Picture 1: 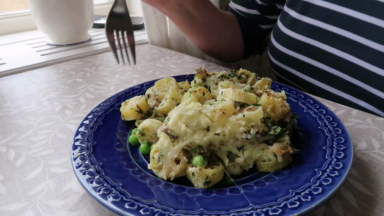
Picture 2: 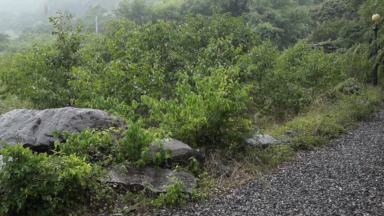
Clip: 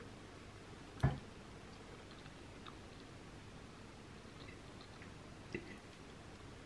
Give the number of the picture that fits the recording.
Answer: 1